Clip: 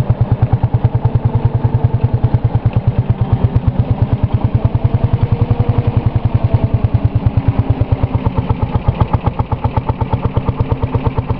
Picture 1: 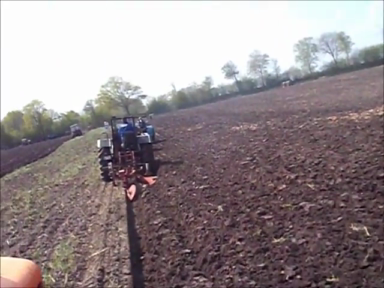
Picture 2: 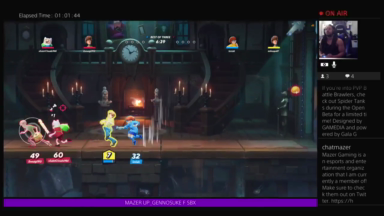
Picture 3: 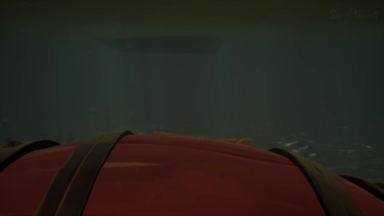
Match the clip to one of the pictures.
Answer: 1